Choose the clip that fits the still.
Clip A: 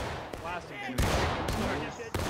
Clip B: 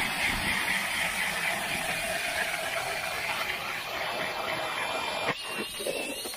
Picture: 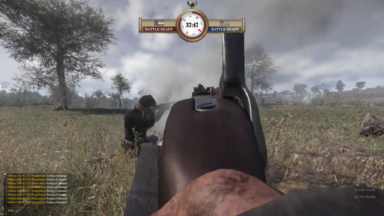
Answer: A